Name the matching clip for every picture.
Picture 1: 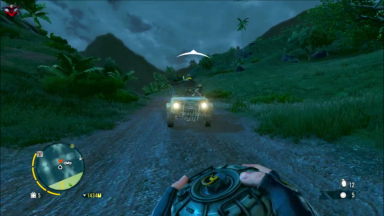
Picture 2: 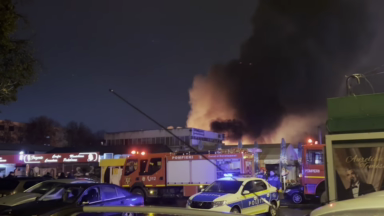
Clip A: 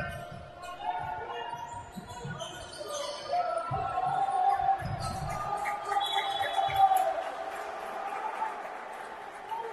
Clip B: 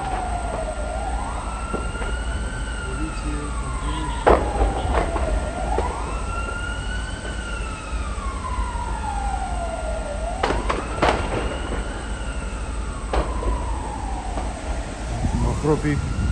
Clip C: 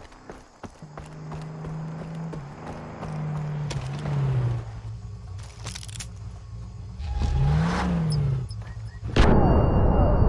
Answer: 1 C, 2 B